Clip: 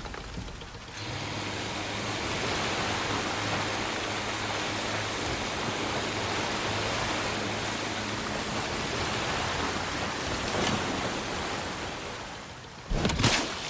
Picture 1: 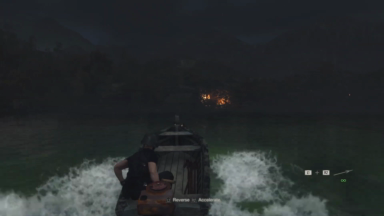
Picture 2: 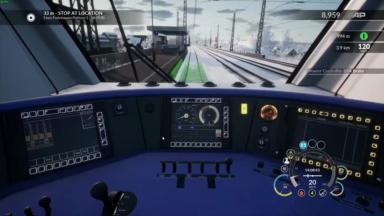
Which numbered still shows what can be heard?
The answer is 1